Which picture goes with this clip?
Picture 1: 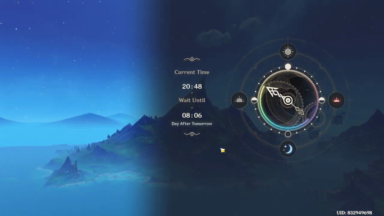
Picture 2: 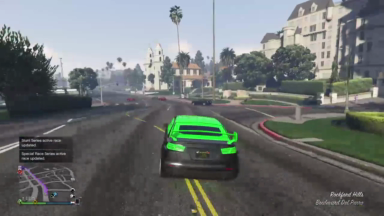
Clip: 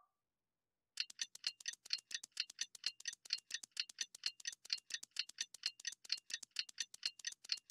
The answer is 1